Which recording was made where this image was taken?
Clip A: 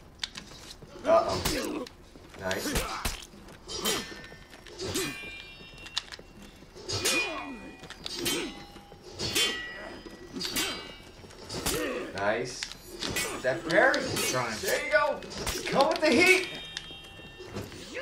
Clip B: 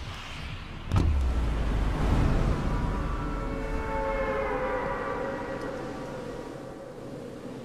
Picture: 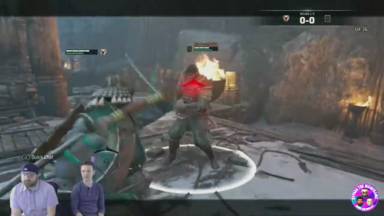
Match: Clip A